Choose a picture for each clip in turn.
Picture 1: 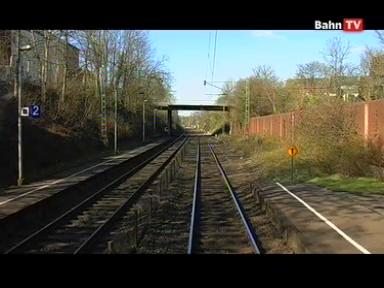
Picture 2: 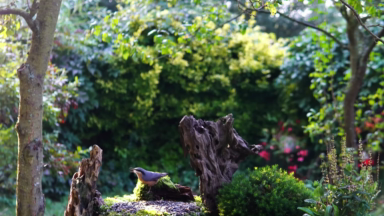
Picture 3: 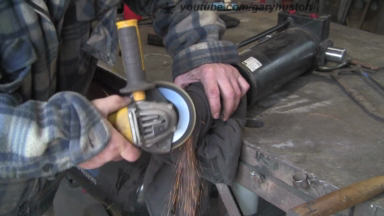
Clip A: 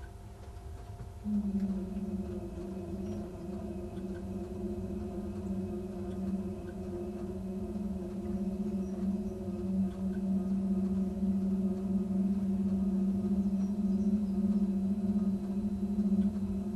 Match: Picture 1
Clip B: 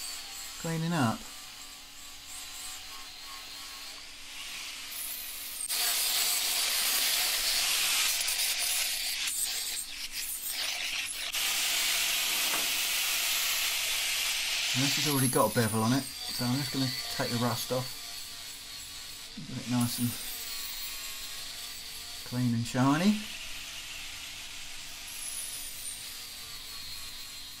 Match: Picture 3